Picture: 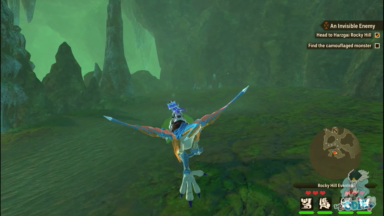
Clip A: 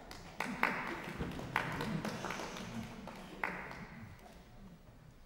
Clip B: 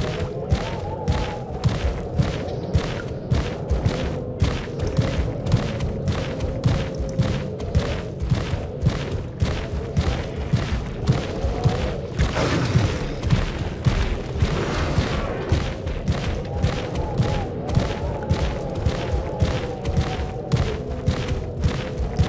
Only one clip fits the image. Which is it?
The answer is B